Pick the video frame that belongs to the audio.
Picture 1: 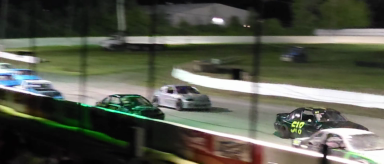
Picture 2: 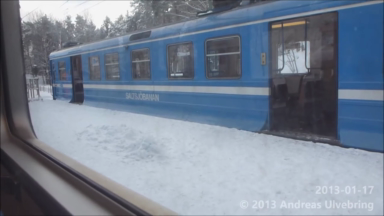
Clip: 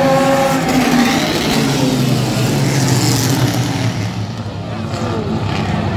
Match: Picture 1